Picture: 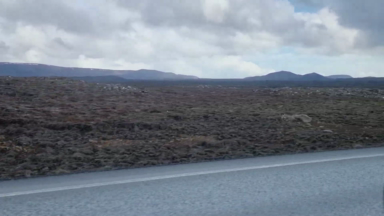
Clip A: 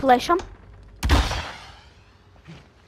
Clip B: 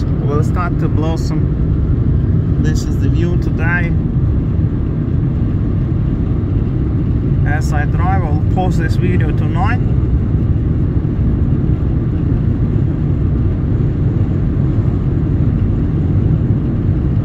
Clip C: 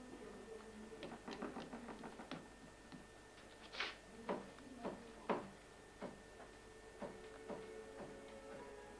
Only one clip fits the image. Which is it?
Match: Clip B